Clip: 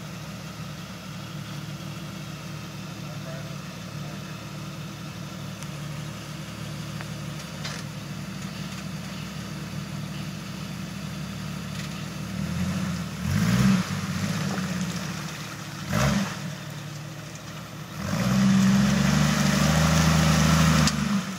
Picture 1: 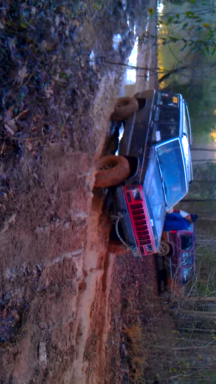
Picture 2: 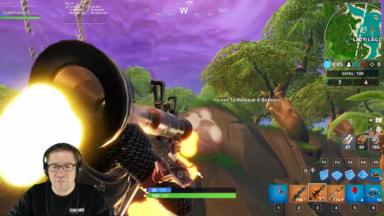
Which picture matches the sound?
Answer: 1